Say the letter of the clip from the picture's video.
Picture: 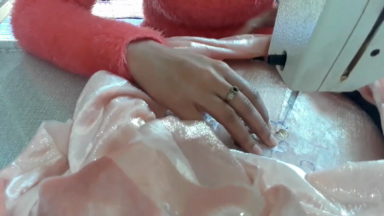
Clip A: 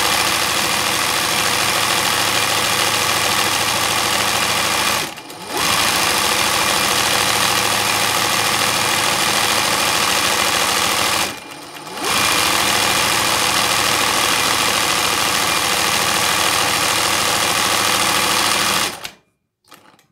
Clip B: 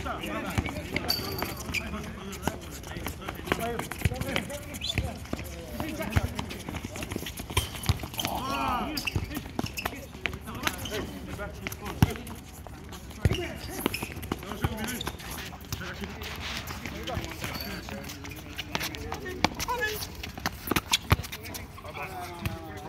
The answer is A